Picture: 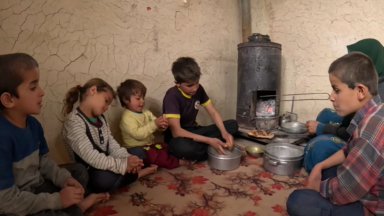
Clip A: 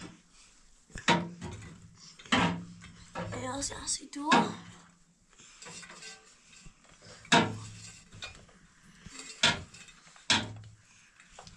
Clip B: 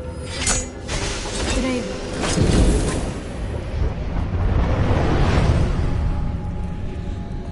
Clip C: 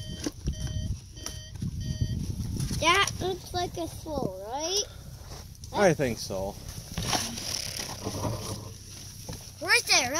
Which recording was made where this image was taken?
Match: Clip A